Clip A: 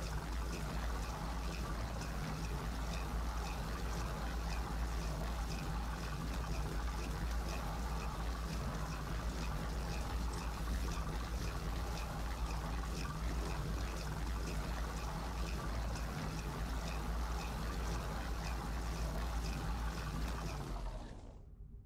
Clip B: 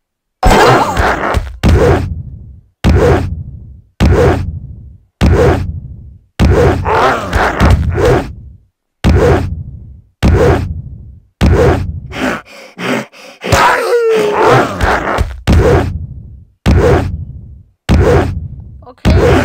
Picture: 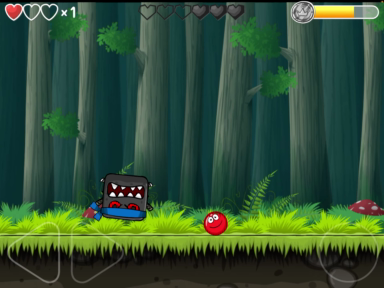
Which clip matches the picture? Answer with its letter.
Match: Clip B